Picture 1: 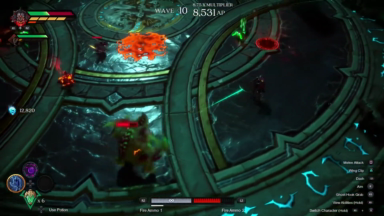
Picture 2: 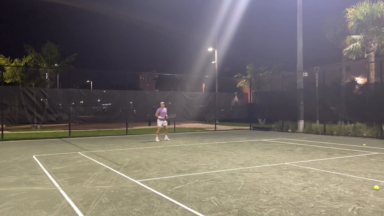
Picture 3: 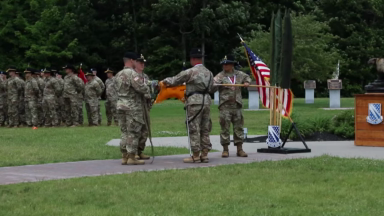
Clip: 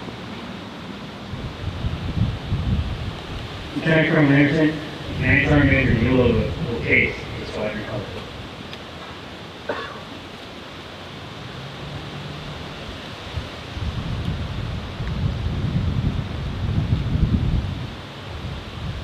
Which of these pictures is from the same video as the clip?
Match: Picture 3